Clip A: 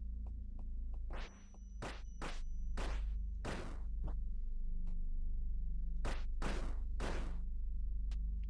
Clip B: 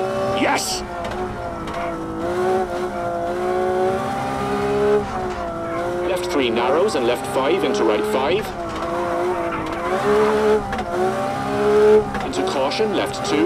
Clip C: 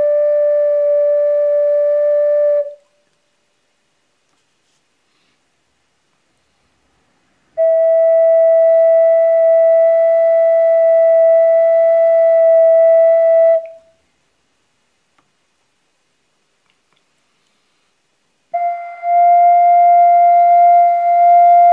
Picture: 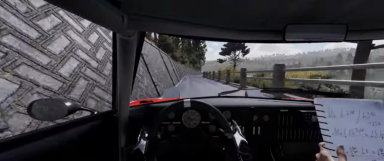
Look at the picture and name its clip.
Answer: B